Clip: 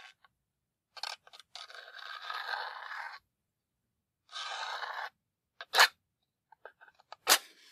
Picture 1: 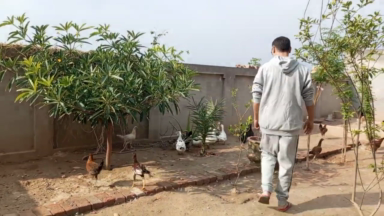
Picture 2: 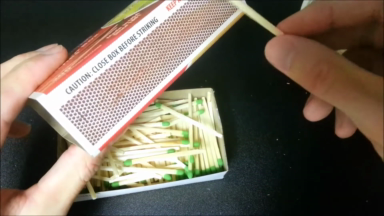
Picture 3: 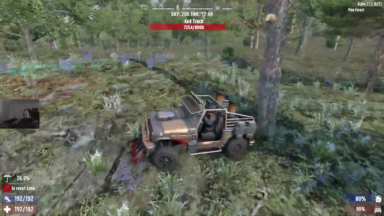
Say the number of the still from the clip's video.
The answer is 2